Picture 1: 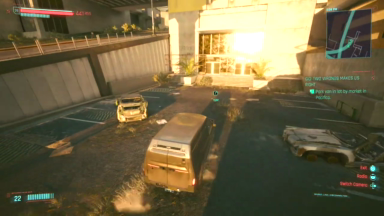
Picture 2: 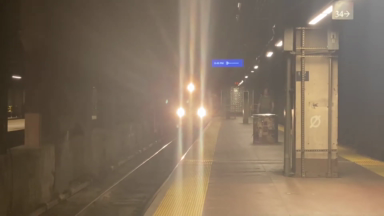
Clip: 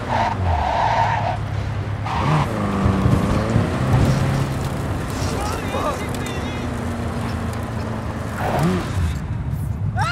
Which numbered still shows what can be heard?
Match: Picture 1